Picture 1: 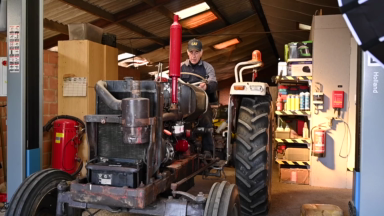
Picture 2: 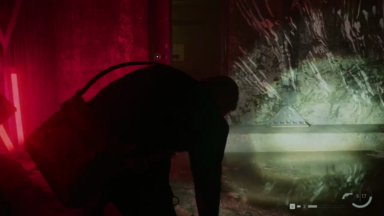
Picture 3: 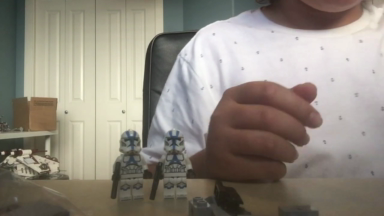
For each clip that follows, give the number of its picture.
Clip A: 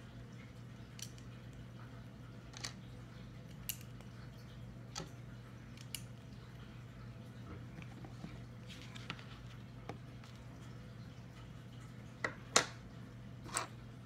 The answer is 3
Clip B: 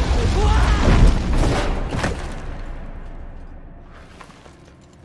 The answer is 2